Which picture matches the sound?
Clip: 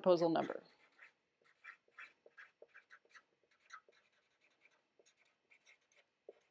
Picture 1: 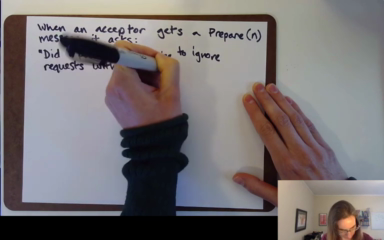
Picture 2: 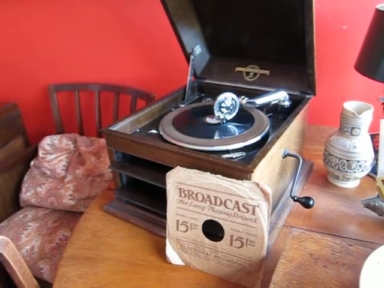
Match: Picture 1